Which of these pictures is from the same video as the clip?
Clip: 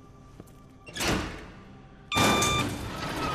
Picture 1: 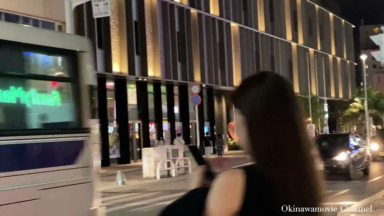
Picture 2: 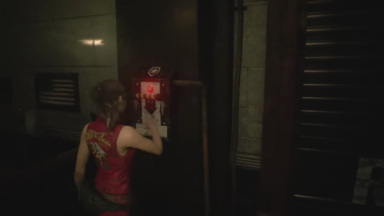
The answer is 2